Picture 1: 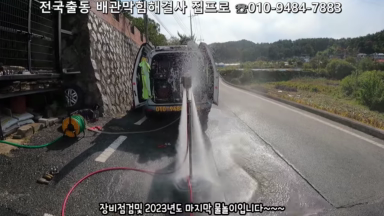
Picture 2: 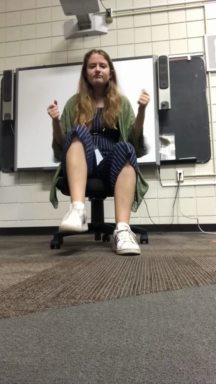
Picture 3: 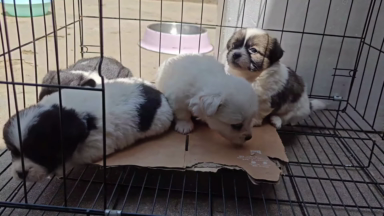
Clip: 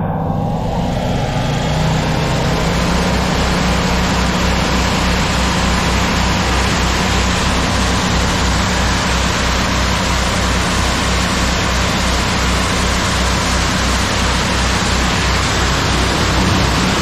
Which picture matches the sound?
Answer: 1